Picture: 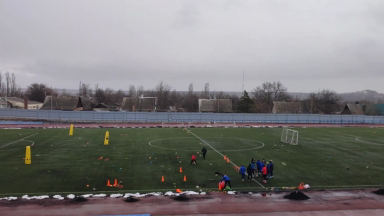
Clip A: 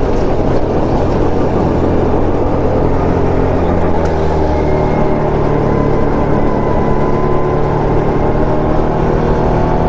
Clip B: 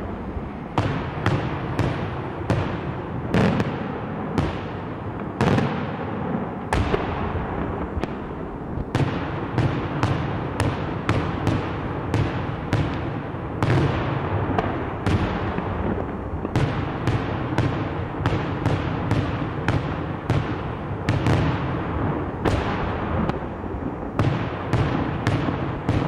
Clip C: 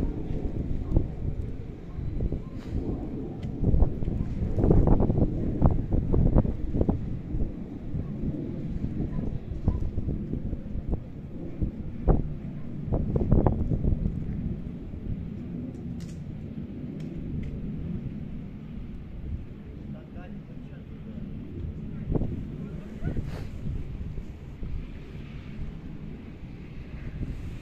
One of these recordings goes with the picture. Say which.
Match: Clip C